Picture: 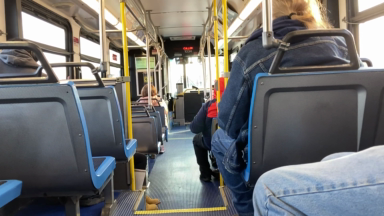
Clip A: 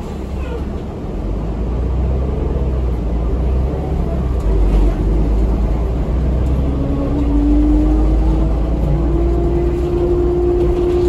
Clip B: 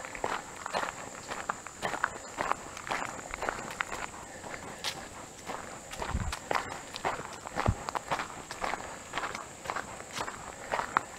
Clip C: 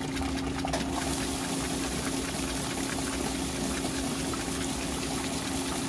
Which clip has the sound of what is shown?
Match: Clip A